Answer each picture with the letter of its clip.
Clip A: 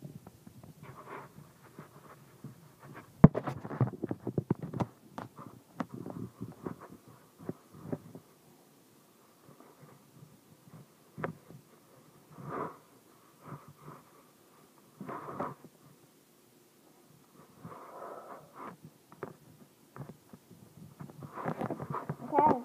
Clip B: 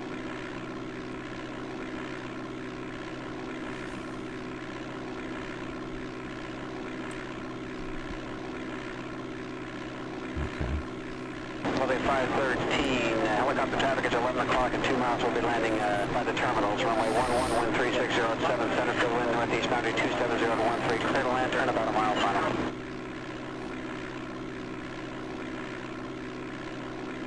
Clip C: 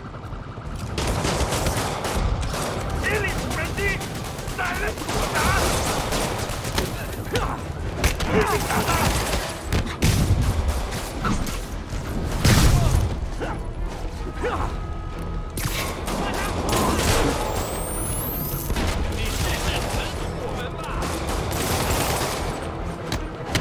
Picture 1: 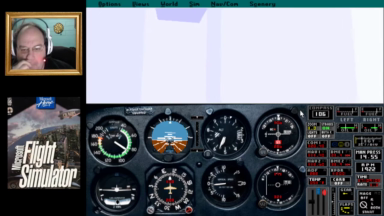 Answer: B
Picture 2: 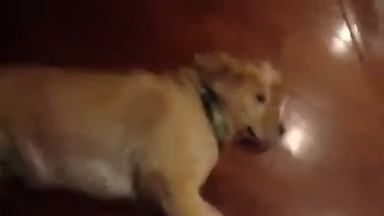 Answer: A